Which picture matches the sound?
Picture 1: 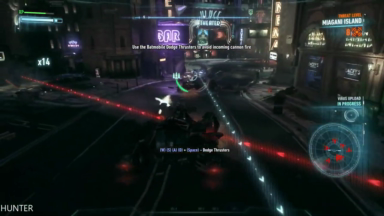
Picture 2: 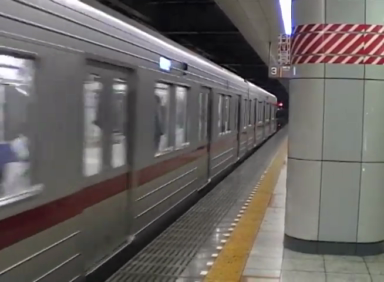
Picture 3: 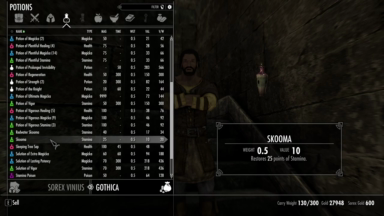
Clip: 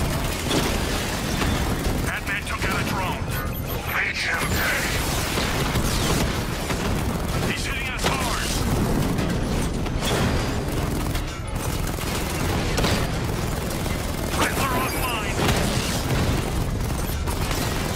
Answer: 1